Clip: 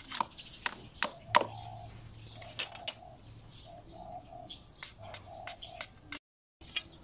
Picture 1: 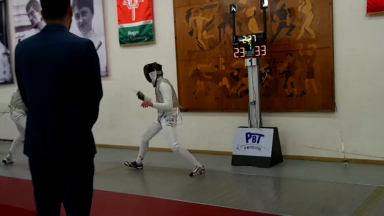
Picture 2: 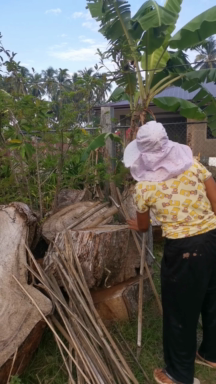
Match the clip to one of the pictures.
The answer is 2